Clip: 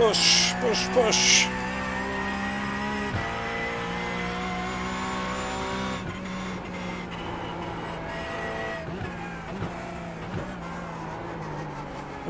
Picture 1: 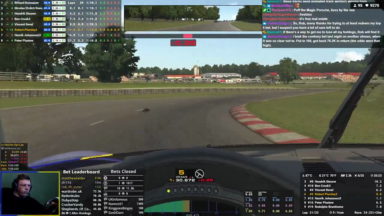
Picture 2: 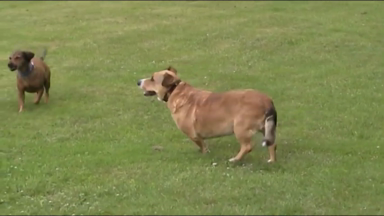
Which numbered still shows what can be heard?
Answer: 1